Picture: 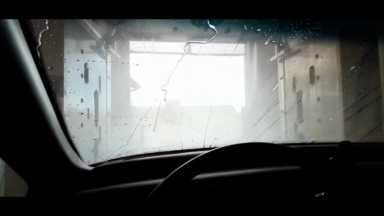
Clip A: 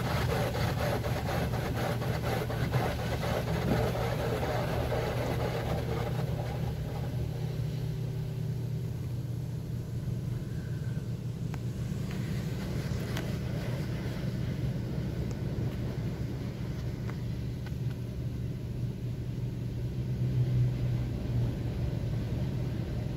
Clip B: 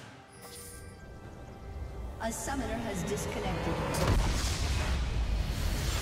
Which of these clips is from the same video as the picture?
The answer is A